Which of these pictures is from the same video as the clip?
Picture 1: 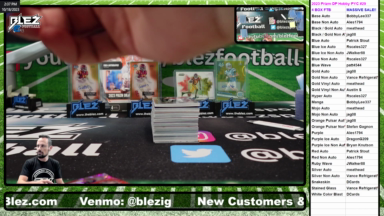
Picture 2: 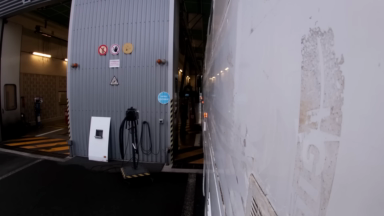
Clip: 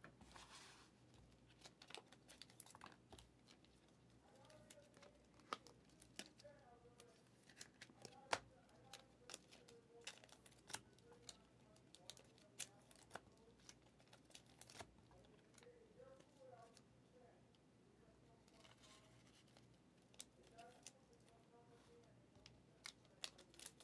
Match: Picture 1